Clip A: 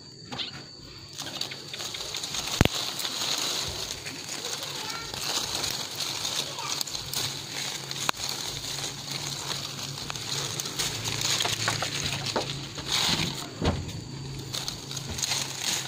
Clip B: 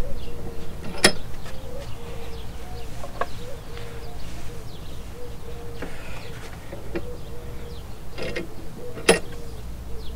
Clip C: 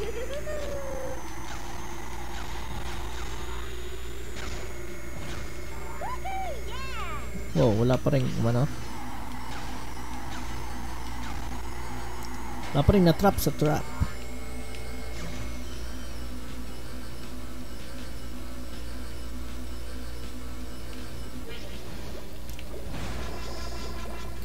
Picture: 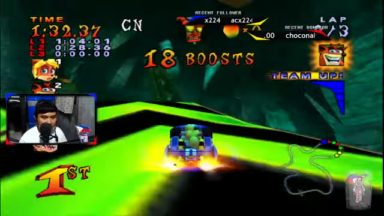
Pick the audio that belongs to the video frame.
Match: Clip C